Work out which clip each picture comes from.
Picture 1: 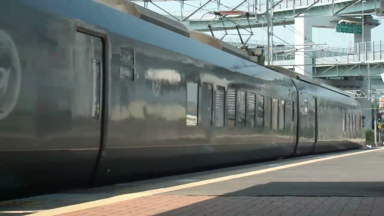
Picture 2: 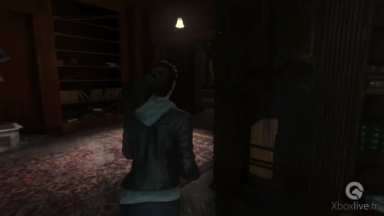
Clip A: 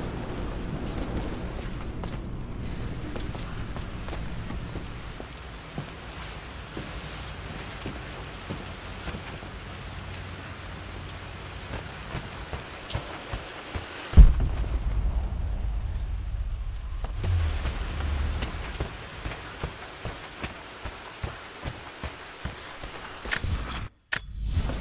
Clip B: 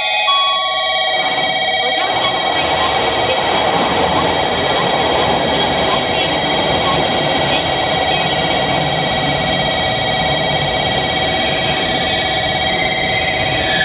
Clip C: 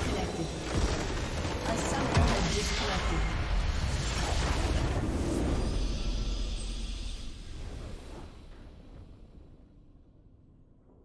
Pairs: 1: B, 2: A